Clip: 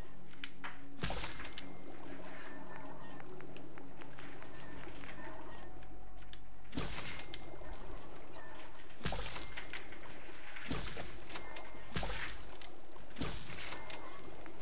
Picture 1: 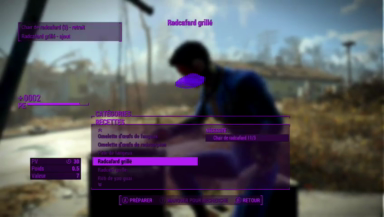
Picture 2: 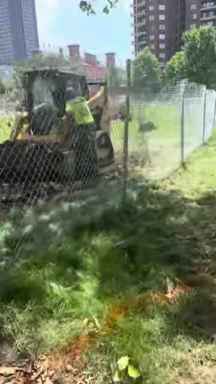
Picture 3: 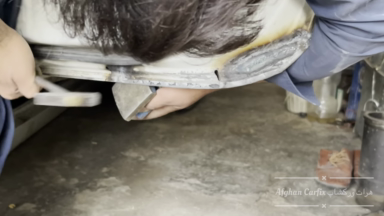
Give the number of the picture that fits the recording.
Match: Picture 1